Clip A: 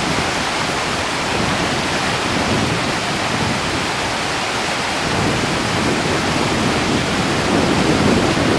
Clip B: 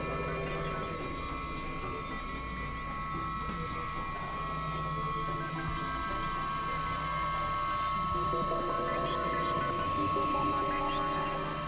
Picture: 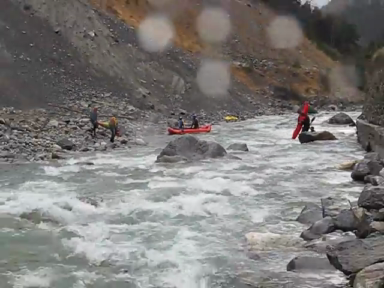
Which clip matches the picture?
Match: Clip A